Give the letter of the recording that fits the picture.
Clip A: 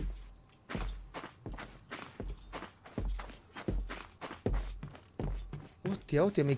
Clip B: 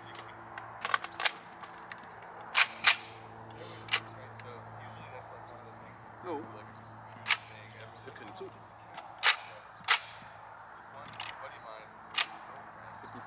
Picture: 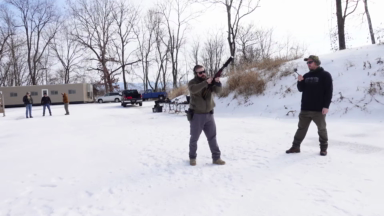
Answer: B